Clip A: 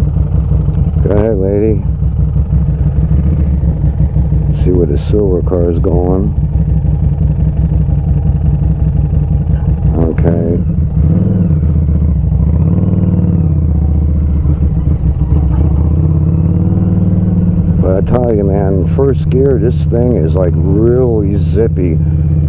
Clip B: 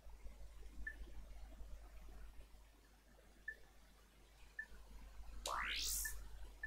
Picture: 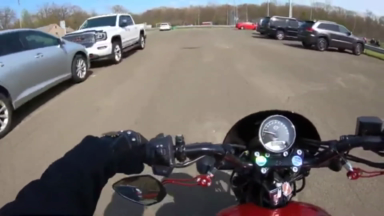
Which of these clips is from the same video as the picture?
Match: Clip A